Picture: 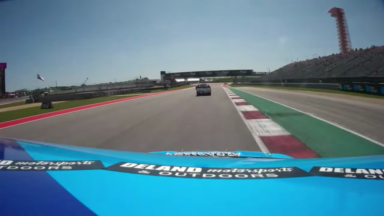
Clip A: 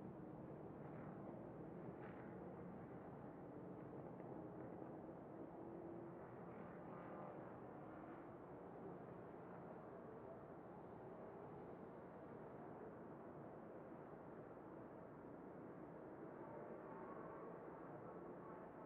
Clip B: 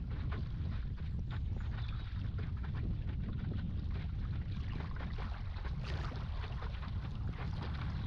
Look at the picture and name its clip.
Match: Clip A